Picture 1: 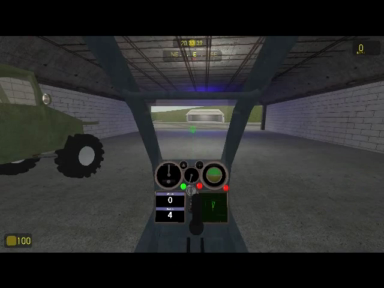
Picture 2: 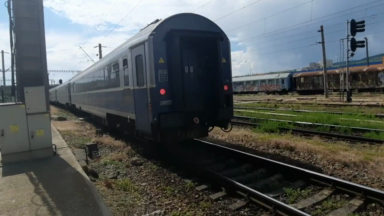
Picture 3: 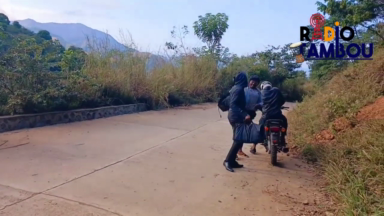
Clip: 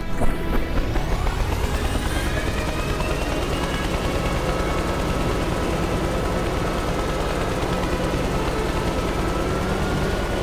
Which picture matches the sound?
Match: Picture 1